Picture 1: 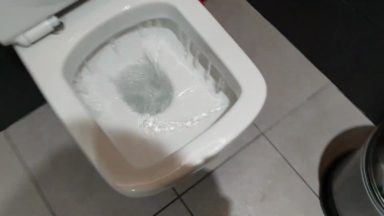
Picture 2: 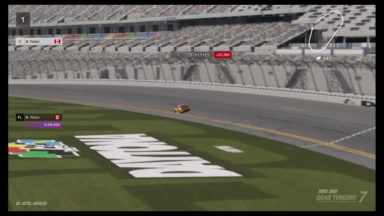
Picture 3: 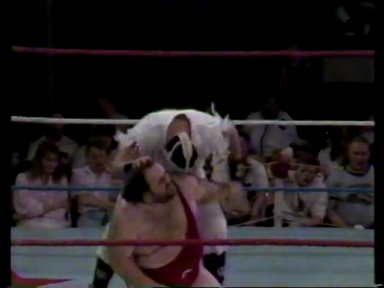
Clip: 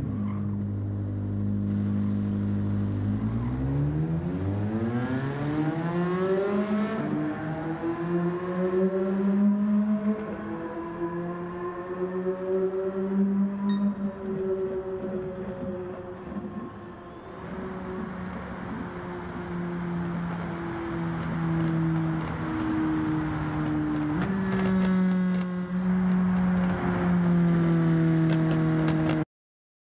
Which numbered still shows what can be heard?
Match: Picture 2